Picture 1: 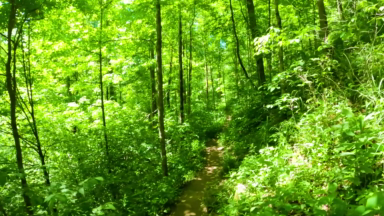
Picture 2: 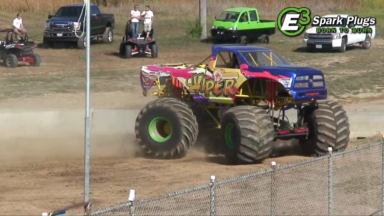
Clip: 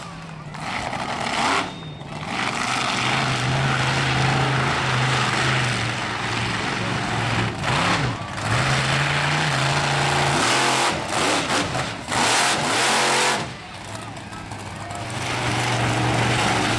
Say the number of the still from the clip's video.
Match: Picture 2